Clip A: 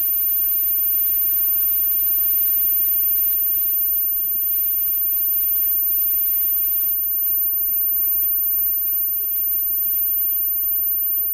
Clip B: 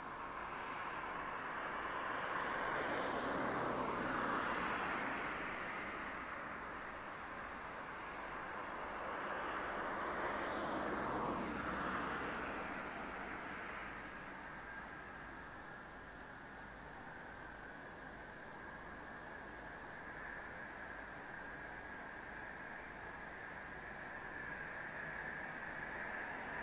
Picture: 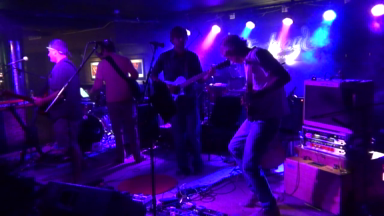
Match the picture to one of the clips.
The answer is A